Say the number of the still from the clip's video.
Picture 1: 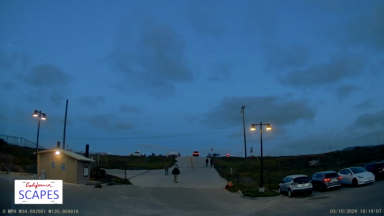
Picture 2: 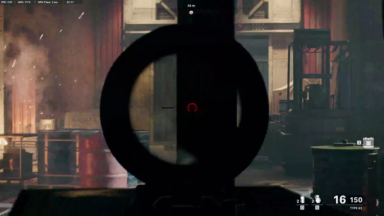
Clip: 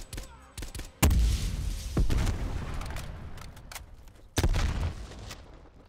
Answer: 2